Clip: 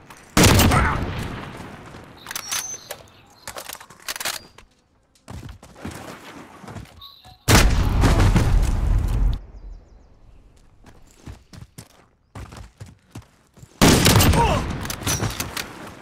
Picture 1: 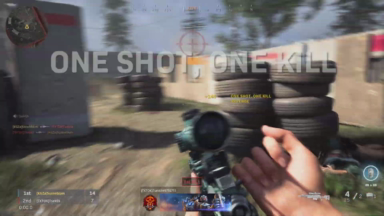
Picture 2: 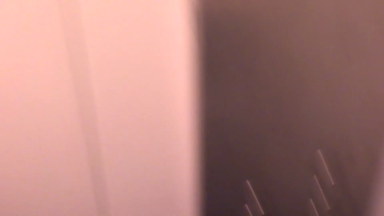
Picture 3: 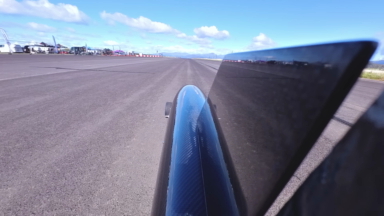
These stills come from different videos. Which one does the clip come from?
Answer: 1